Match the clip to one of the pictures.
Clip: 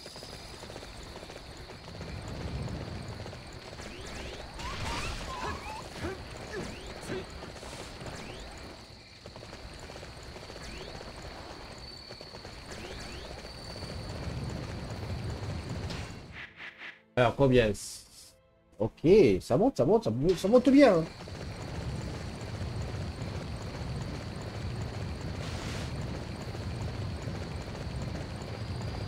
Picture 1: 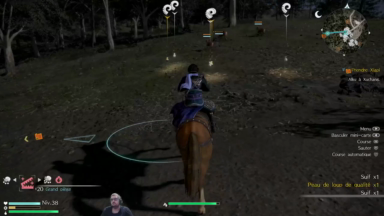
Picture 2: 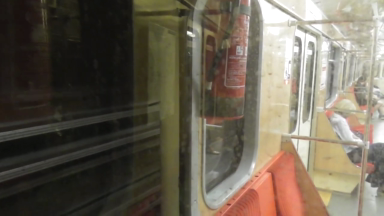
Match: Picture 1